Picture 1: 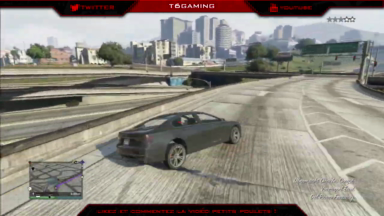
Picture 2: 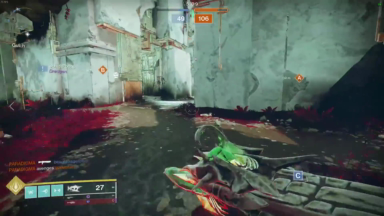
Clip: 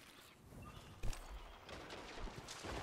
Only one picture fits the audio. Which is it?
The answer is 2